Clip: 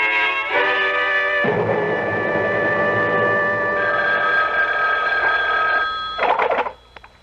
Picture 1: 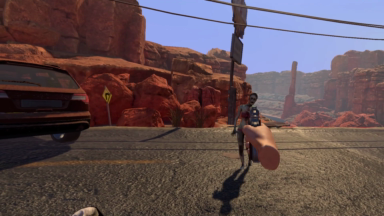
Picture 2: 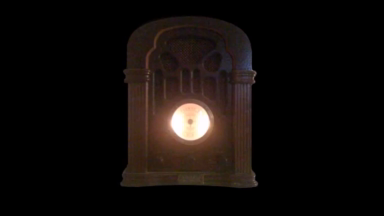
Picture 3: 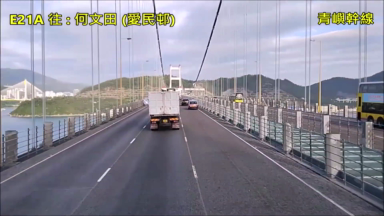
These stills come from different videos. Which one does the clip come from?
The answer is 2